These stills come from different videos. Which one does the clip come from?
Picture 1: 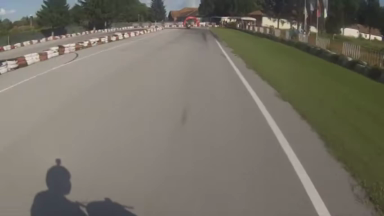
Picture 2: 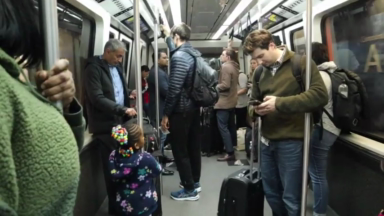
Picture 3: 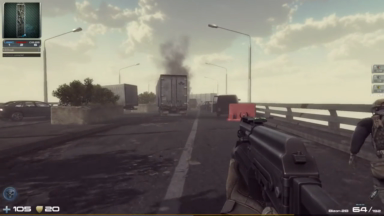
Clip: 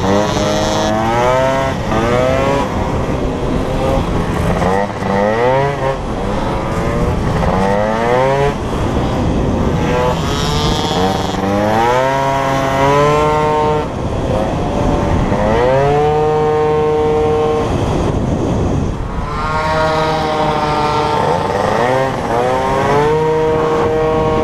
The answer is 1